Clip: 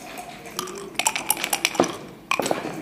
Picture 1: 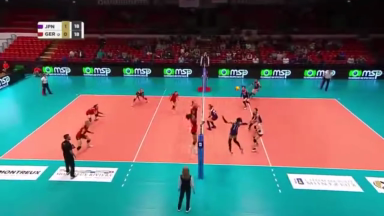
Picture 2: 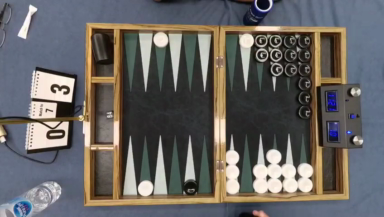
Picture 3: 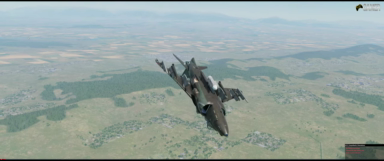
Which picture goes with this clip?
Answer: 2